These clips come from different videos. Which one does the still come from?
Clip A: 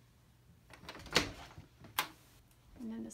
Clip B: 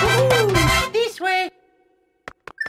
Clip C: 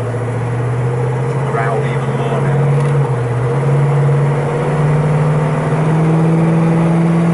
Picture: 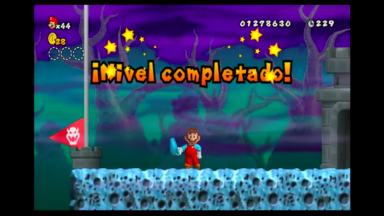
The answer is B